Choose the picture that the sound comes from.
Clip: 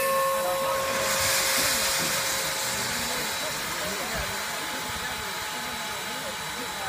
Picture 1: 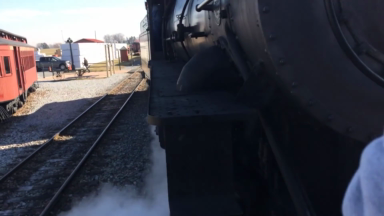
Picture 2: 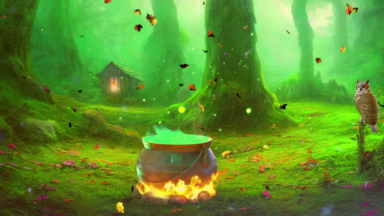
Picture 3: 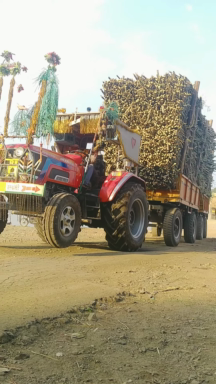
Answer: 1